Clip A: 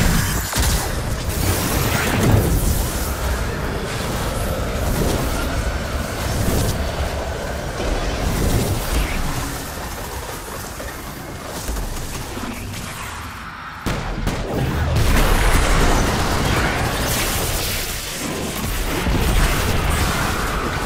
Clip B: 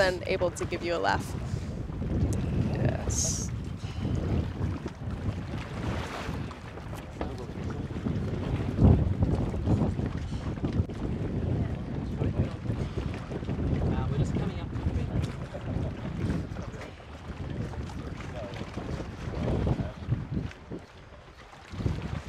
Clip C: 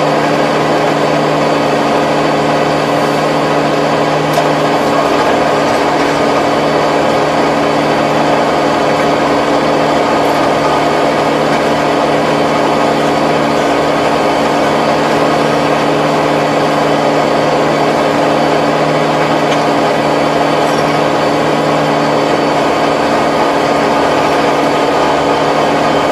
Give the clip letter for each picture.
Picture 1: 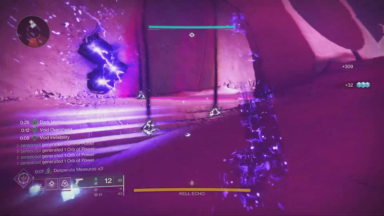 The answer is A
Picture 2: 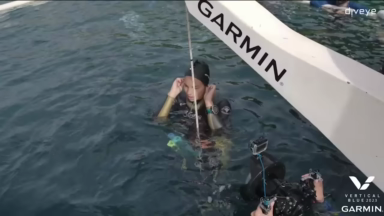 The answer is B